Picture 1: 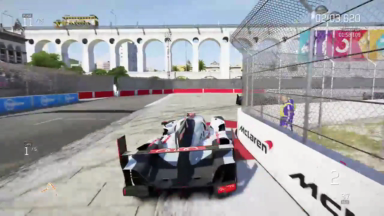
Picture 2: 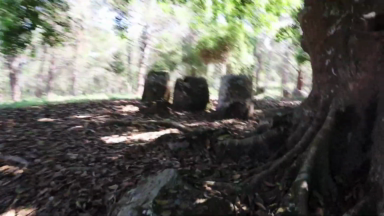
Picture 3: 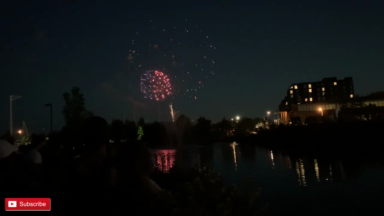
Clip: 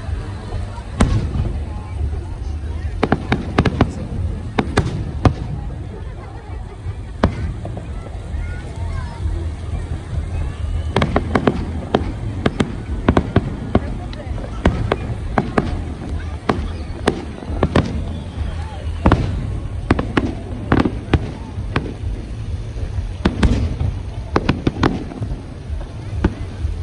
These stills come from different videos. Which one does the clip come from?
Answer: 3